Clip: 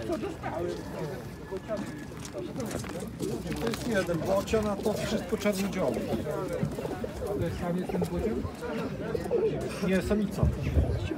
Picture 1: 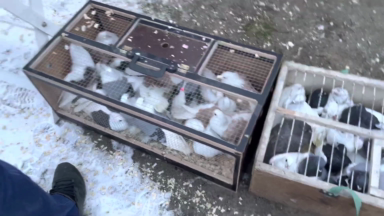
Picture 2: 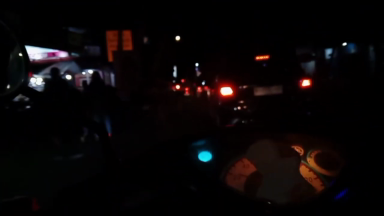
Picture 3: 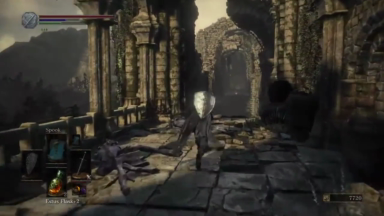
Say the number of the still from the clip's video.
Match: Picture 1